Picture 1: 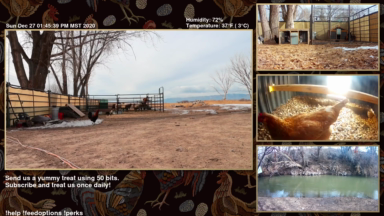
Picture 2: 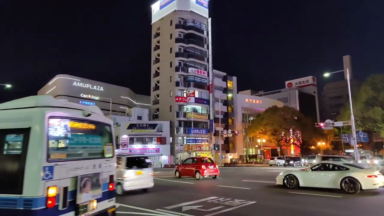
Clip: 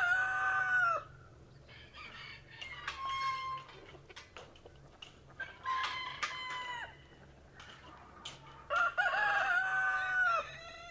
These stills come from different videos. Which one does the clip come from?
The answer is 1